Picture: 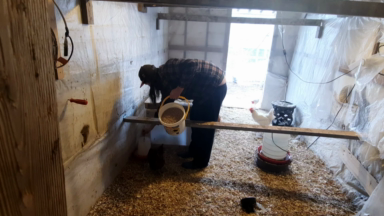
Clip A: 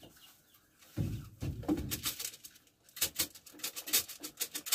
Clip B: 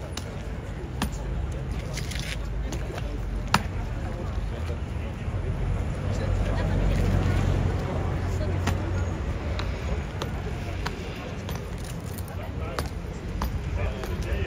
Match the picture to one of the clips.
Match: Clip A